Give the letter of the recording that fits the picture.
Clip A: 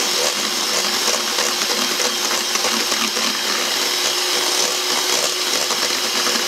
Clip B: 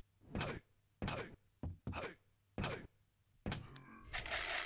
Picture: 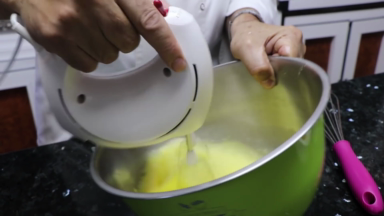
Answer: A